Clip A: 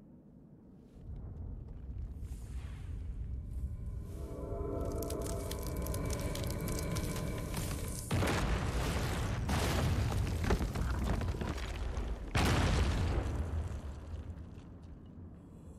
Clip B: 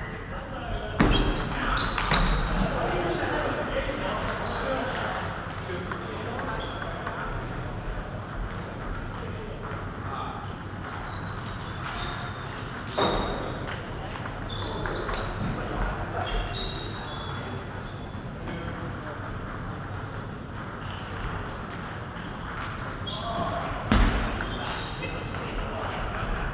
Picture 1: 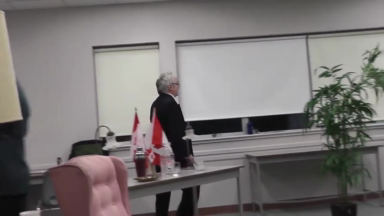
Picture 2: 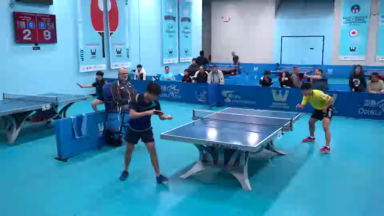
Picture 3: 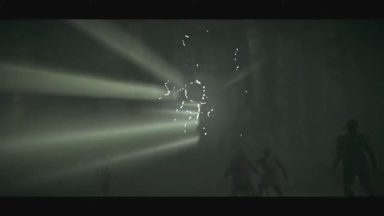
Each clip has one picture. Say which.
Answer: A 3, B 2